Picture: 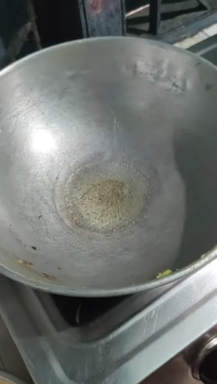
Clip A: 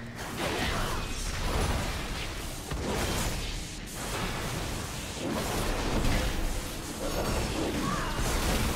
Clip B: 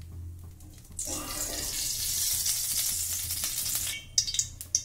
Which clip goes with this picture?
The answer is B